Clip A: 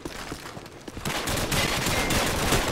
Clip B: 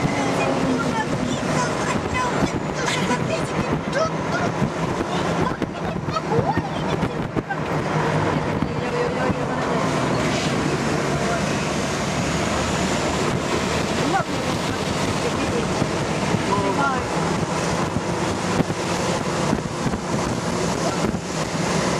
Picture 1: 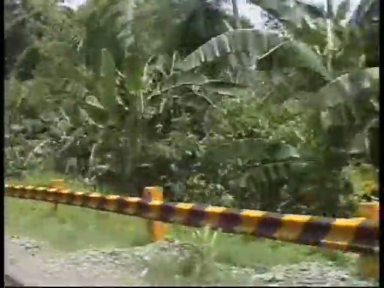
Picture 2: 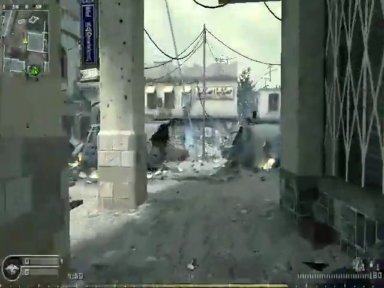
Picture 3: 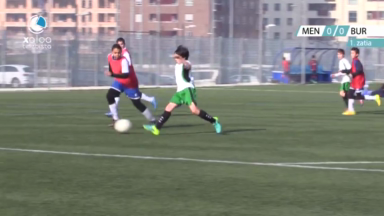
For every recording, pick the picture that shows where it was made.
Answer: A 2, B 1